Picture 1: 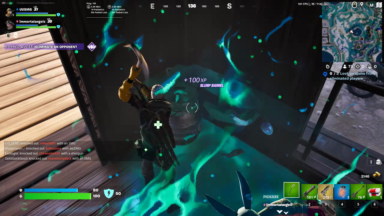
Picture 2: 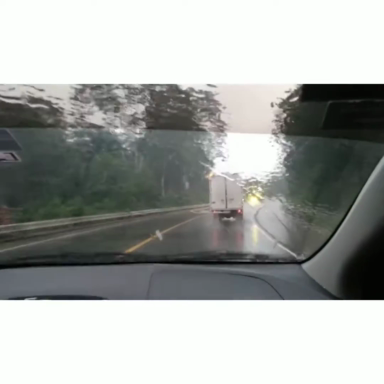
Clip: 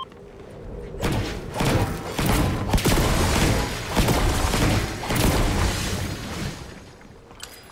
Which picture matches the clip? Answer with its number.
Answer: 1